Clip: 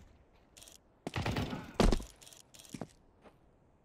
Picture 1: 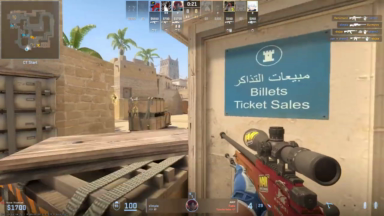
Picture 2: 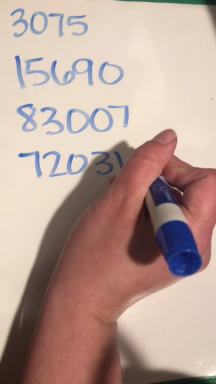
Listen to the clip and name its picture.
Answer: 1